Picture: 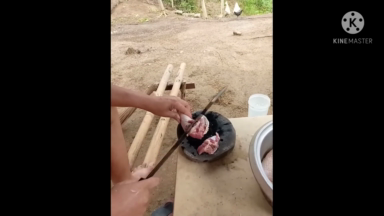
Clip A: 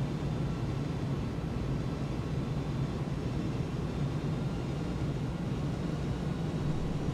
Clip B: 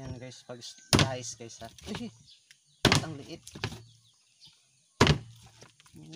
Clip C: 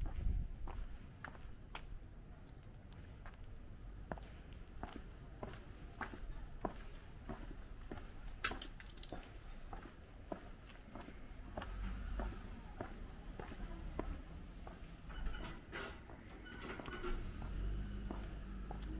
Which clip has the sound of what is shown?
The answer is B